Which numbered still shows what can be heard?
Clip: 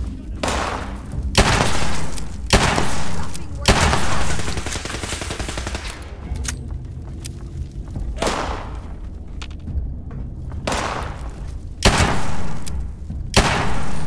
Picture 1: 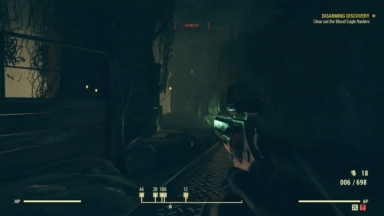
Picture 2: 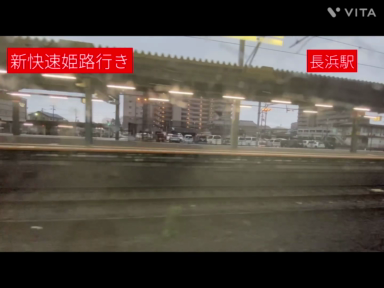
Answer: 1